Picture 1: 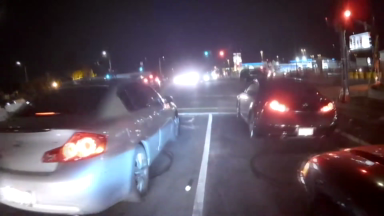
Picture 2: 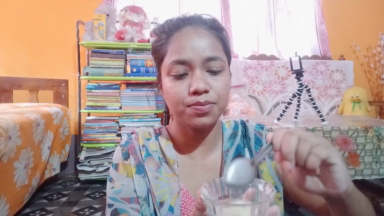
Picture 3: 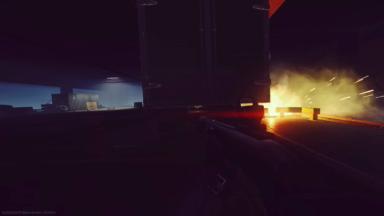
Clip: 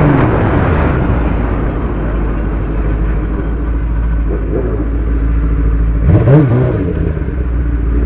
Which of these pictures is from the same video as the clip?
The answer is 1